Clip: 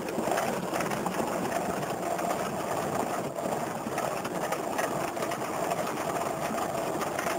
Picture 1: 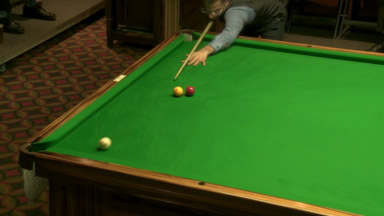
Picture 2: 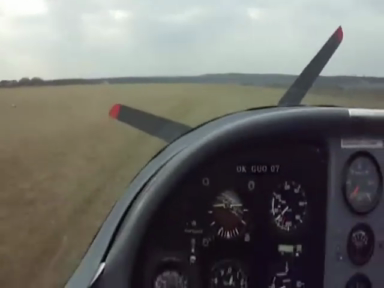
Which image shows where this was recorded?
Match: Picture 2